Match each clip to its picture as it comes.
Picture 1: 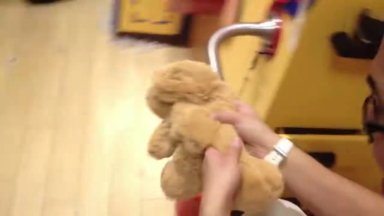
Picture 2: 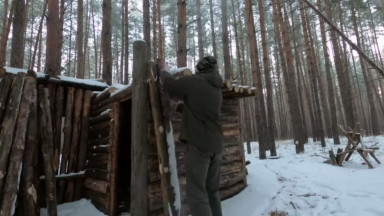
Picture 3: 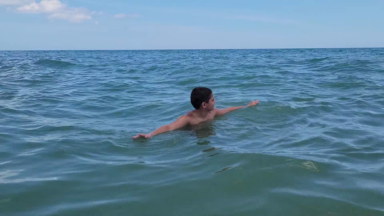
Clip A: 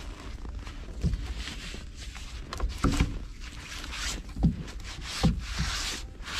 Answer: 2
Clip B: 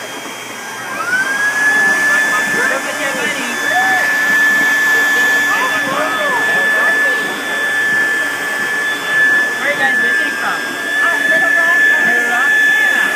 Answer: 1